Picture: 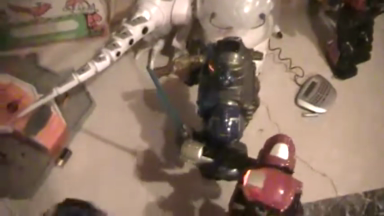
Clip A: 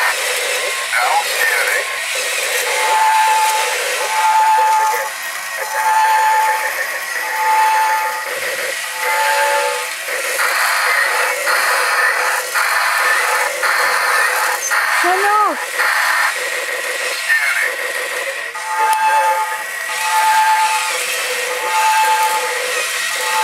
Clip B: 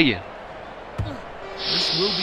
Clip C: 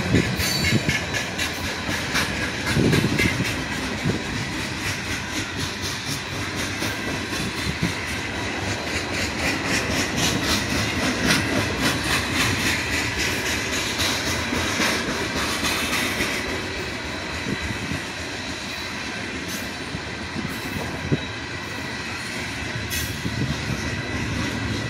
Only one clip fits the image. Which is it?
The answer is A